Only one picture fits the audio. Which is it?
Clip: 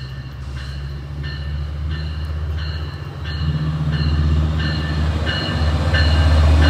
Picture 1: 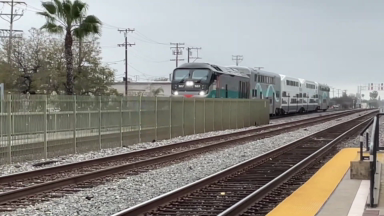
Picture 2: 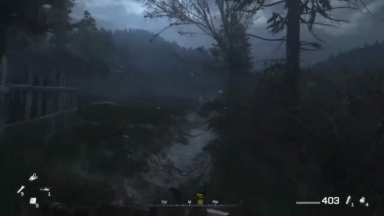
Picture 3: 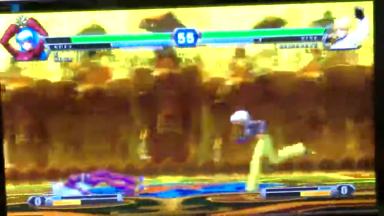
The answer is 1